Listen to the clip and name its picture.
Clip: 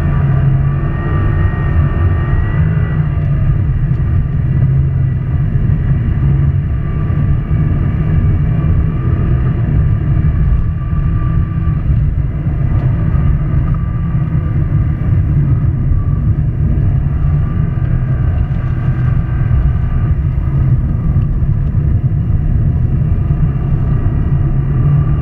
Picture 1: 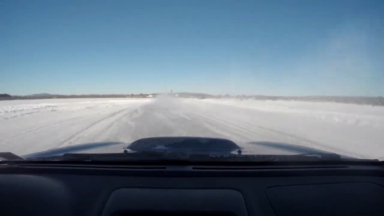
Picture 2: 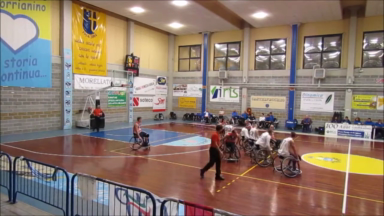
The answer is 1